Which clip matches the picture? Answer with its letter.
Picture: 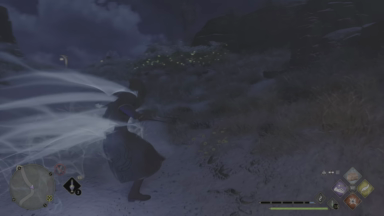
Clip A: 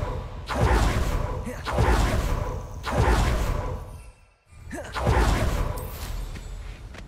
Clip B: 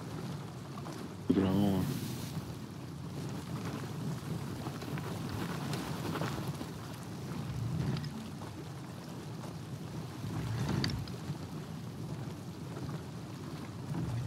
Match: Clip A